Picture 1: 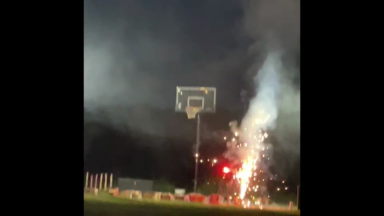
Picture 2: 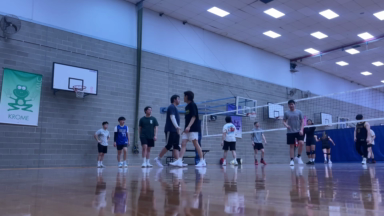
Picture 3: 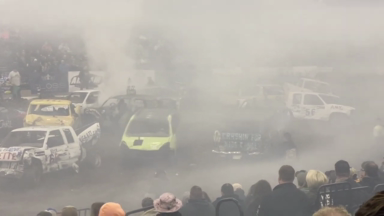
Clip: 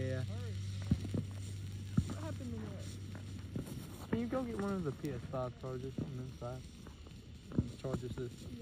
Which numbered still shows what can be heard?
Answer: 1